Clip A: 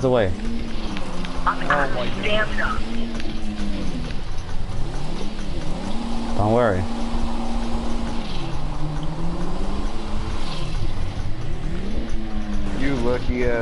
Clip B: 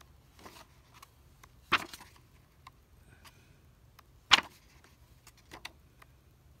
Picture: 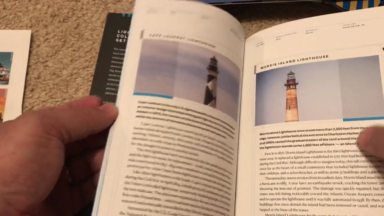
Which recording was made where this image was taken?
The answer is B